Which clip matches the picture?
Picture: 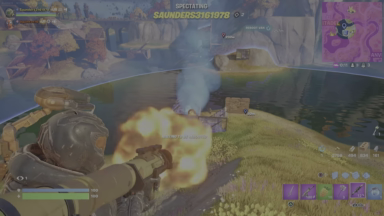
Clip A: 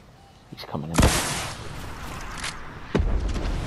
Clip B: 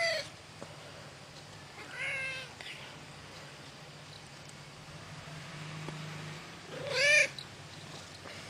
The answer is A